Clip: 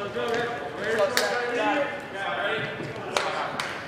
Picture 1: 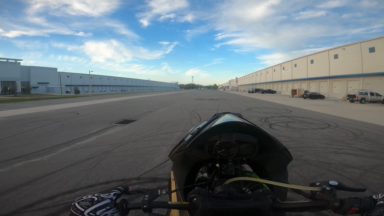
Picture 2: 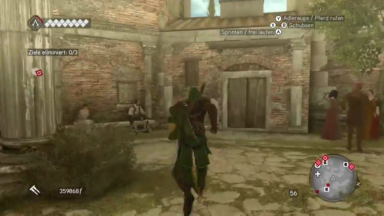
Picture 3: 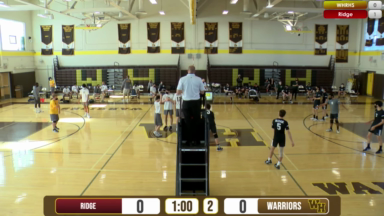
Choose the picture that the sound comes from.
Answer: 3